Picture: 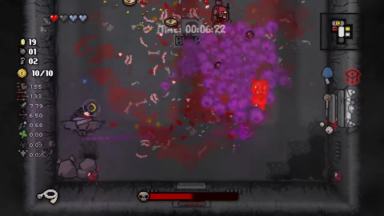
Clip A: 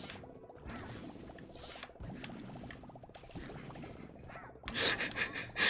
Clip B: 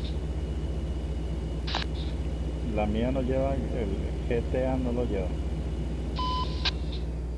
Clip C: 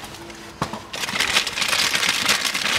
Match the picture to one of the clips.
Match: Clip A